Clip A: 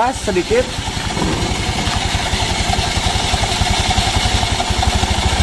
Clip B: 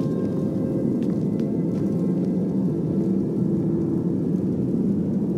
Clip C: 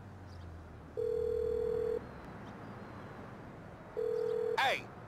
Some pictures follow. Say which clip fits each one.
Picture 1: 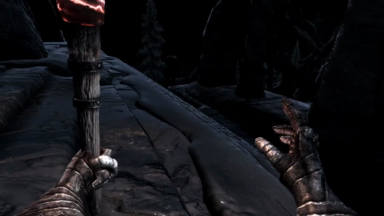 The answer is B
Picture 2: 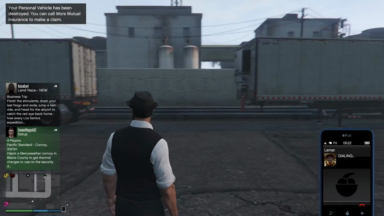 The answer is C